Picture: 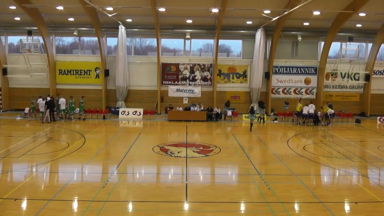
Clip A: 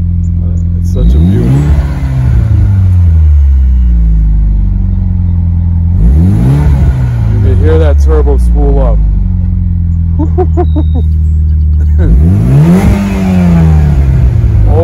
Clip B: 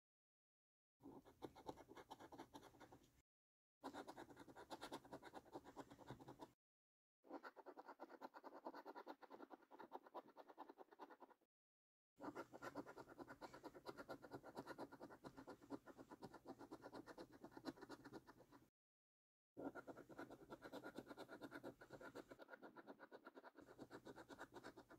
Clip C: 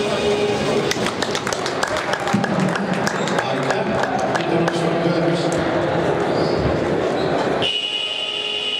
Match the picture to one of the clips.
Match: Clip C